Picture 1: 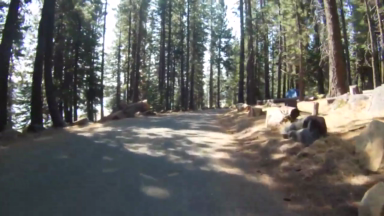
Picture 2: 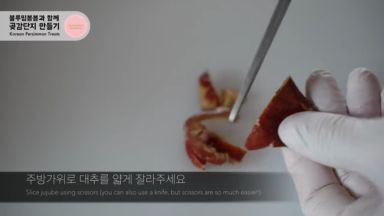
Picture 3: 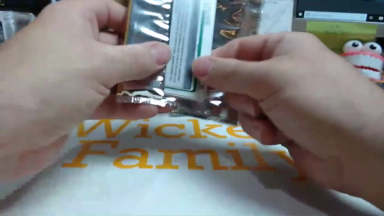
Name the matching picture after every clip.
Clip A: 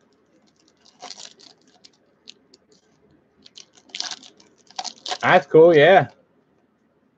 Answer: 3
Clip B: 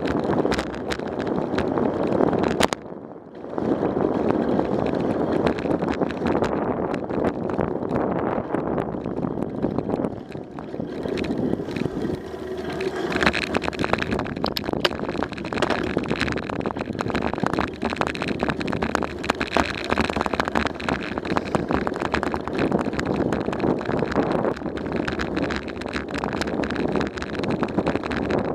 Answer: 1